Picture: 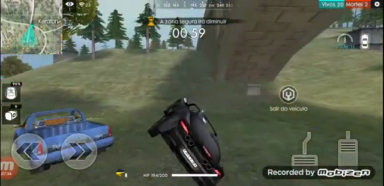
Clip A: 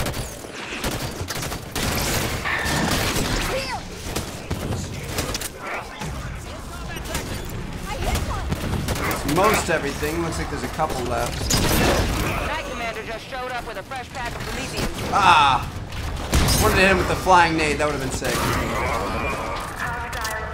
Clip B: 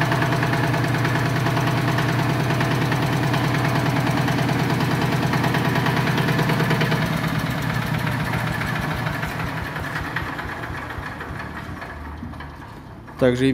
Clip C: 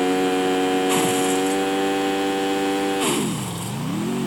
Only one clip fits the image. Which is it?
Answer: C